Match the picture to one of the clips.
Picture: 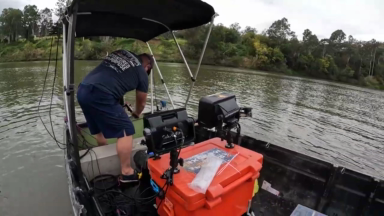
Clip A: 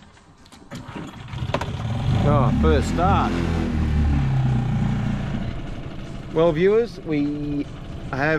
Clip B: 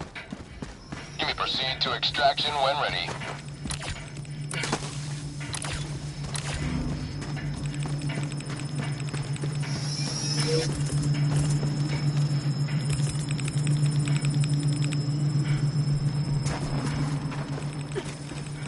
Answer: A